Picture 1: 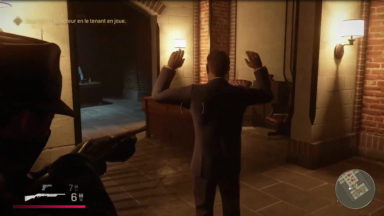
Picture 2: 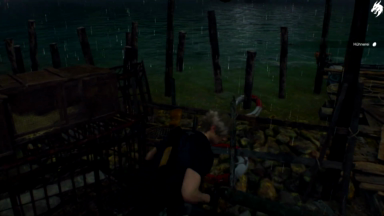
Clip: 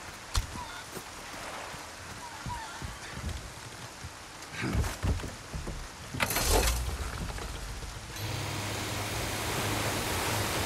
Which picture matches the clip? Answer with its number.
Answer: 2